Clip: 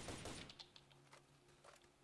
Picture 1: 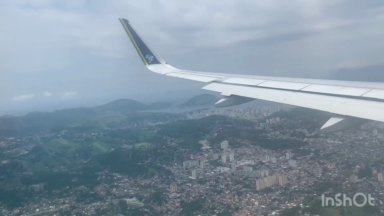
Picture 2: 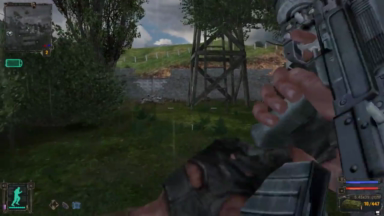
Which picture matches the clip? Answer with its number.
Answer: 2